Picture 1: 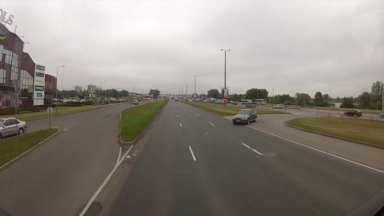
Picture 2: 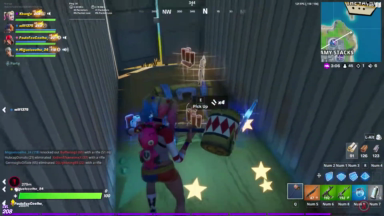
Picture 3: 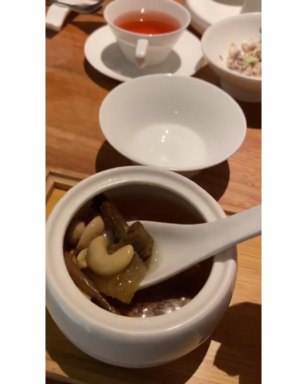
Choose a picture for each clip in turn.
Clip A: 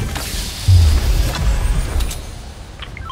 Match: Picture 2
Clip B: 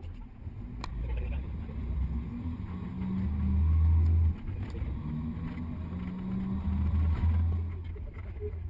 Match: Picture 1